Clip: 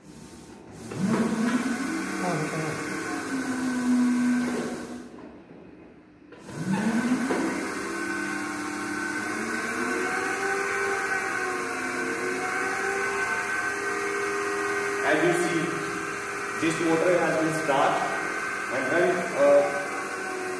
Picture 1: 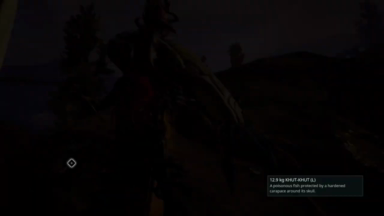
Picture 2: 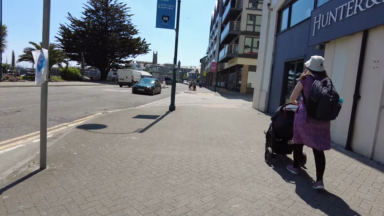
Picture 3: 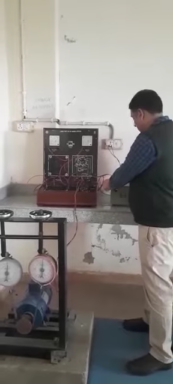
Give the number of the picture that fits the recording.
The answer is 3